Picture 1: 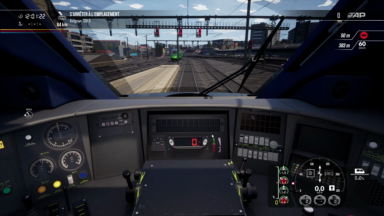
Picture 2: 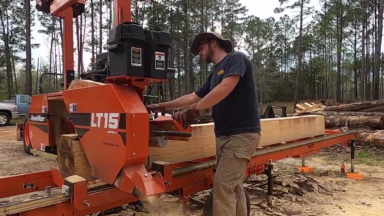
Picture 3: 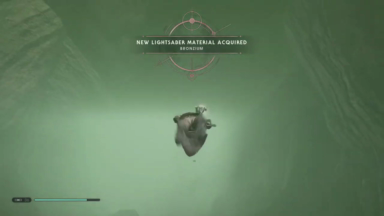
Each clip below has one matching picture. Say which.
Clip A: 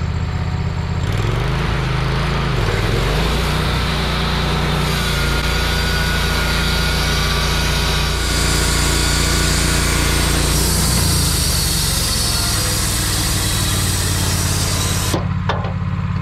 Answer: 2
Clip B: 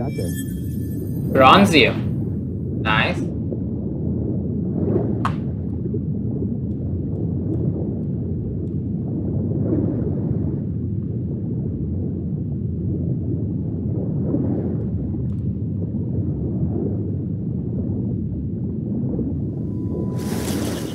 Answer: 3